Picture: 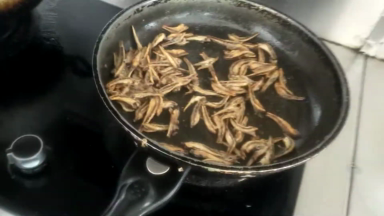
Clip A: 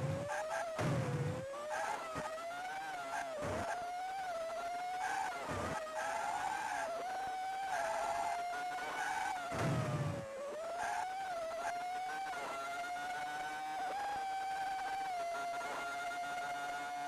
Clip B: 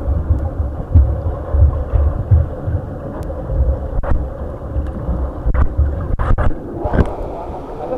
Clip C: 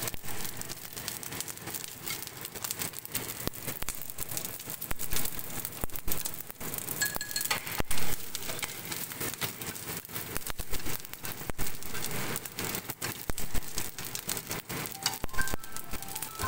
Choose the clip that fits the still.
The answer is C